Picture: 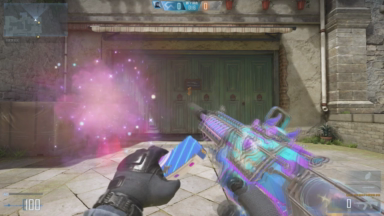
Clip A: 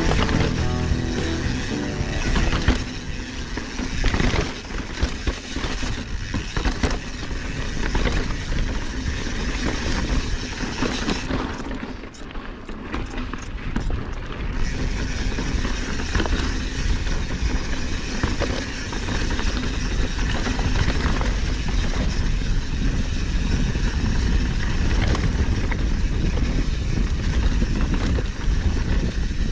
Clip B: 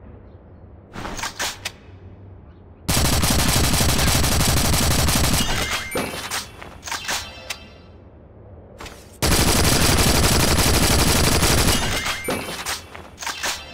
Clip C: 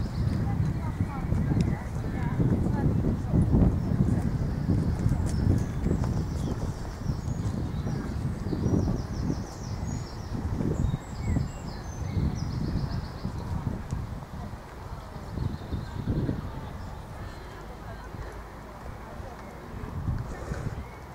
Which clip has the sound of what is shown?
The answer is B